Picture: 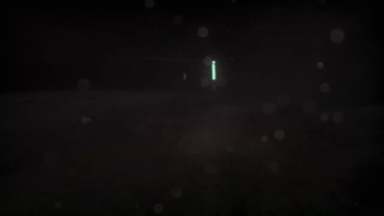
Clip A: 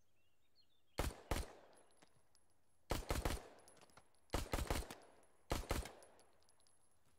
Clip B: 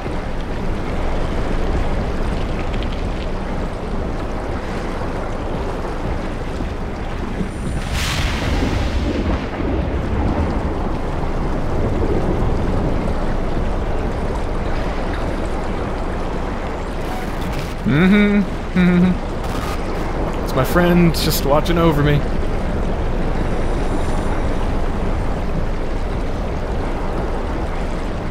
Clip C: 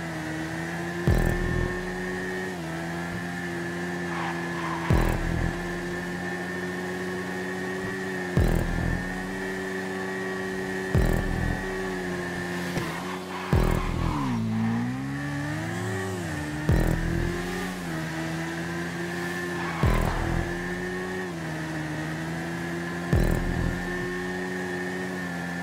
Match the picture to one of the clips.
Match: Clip B